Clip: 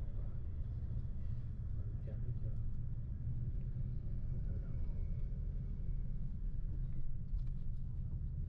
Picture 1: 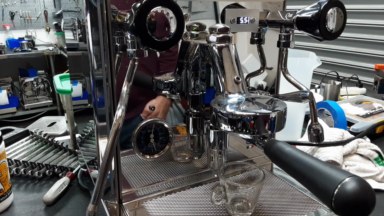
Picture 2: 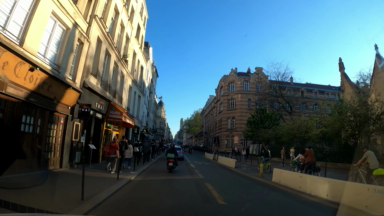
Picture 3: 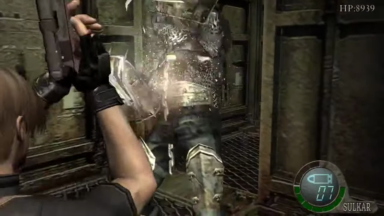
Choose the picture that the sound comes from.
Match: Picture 2